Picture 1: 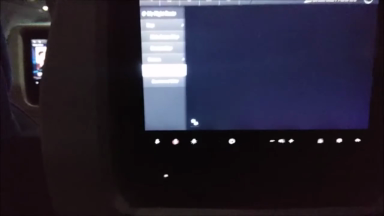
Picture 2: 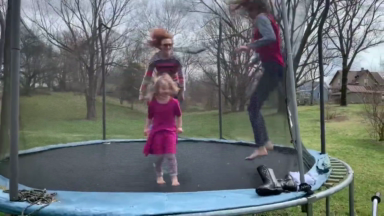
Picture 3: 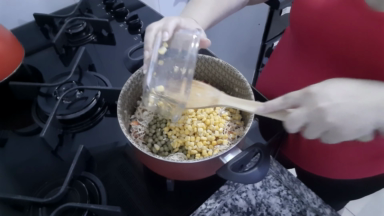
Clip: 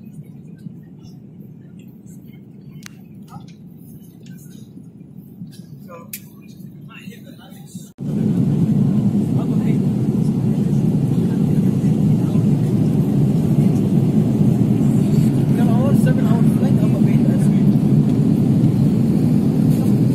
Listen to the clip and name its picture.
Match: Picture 1